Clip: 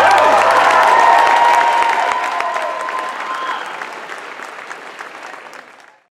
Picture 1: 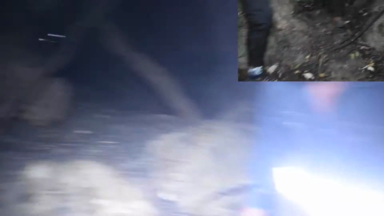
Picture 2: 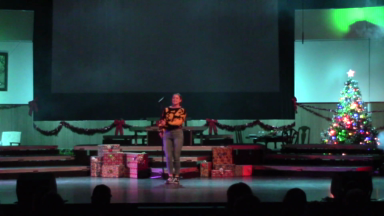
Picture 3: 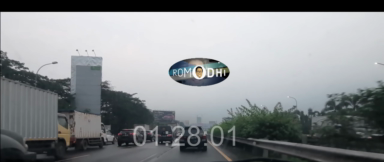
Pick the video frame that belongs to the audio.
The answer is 2